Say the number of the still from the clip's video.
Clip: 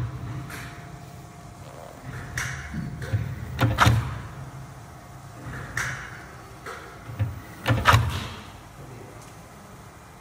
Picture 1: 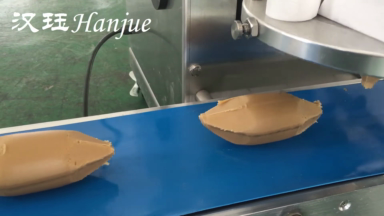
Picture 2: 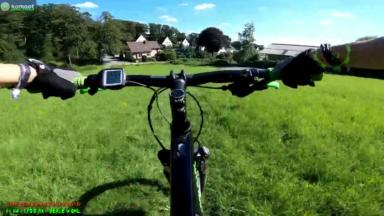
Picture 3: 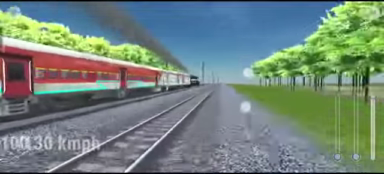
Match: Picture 1